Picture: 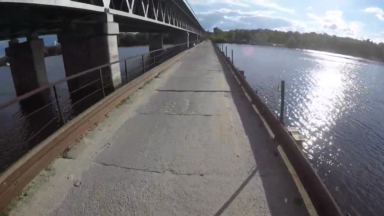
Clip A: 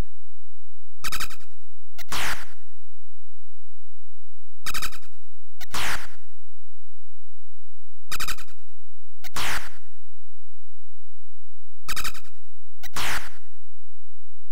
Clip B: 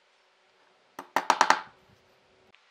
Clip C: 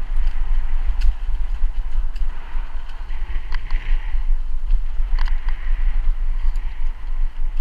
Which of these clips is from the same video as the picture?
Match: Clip C